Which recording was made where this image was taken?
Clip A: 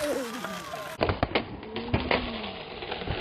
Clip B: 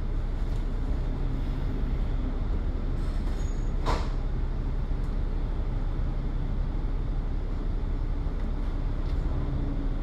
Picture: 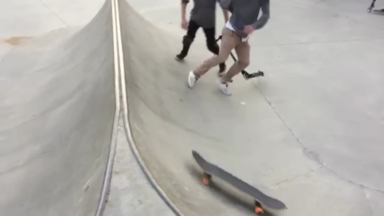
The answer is A